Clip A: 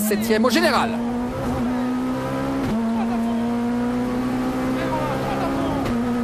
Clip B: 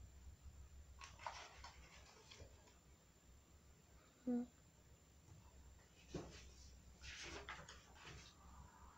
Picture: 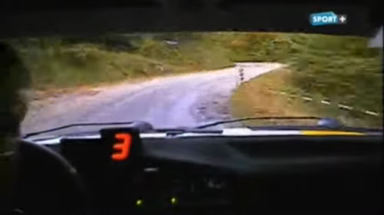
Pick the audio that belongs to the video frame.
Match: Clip A